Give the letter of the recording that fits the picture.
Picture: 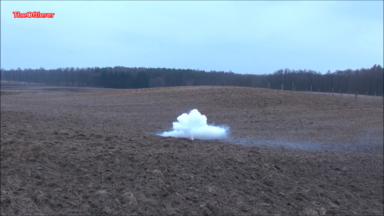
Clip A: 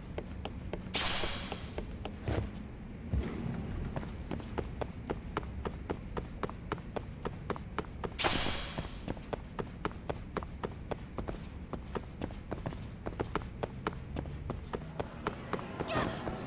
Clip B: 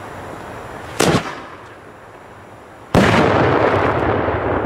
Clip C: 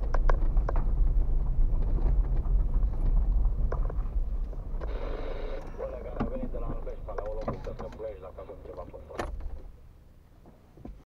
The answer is B